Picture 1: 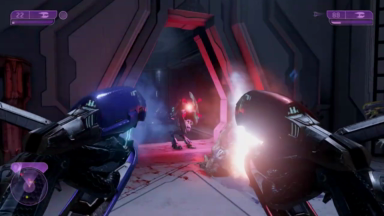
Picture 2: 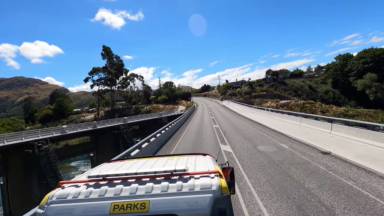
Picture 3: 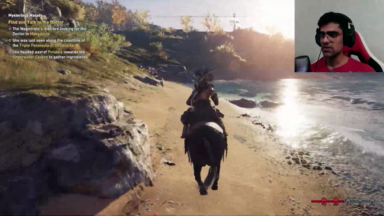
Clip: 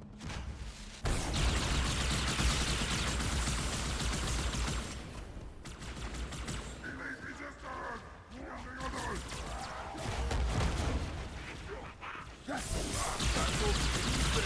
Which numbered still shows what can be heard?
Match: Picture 1